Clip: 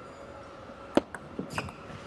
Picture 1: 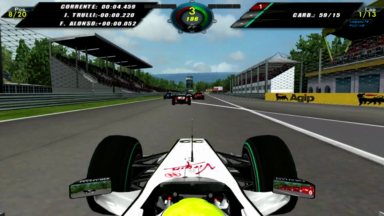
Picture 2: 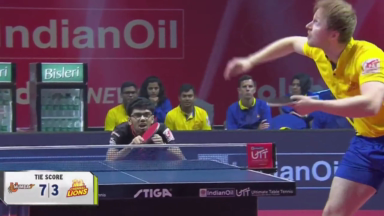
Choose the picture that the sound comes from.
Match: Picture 2